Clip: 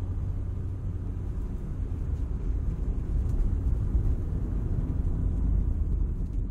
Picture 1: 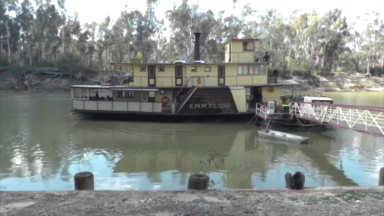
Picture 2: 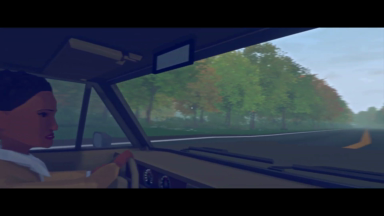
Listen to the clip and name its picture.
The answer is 2